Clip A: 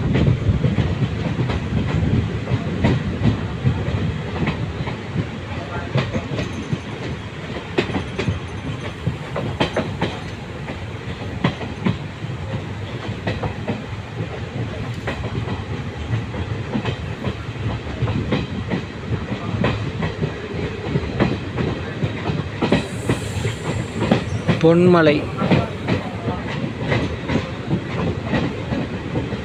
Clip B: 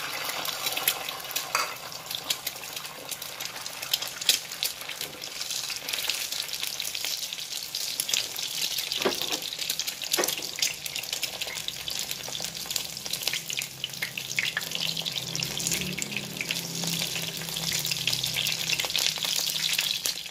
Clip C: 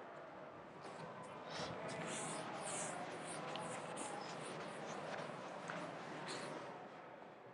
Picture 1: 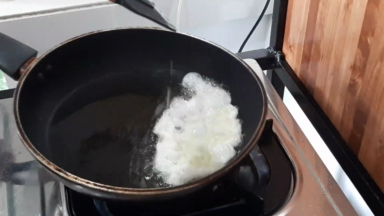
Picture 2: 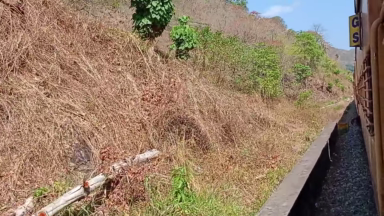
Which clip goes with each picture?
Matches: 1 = B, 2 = A